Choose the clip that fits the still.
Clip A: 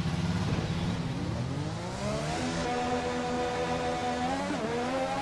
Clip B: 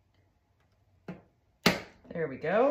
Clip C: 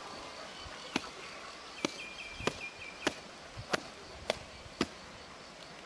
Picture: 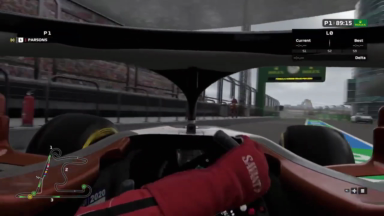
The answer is A